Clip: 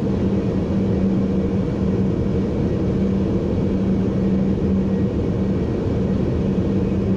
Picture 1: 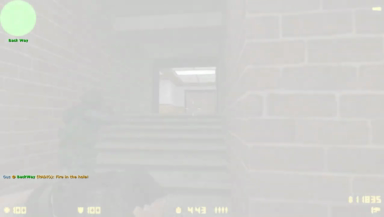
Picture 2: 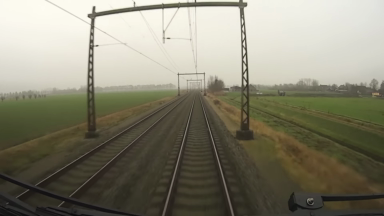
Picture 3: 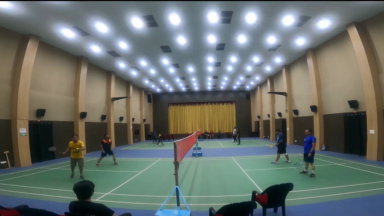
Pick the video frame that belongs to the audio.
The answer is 2